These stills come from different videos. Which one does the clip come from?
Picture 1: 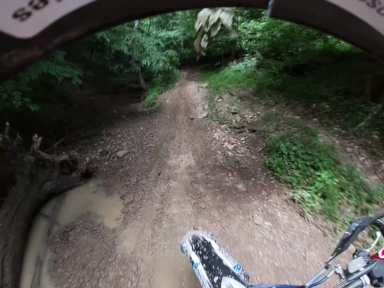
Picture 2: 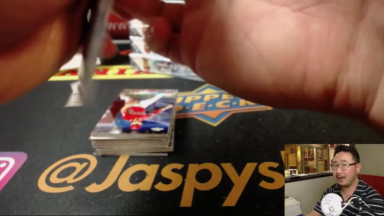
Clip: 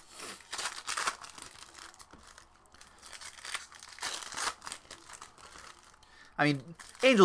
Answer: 2